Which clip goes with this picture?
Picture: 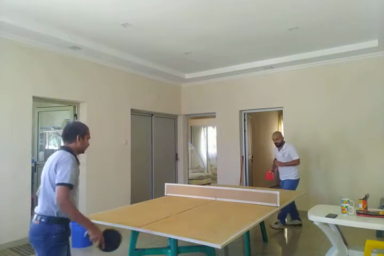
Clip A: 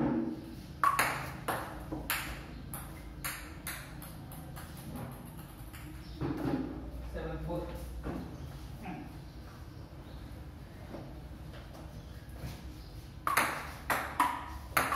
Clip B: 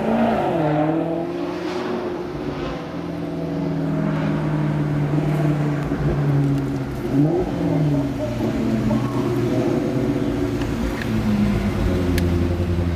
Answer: A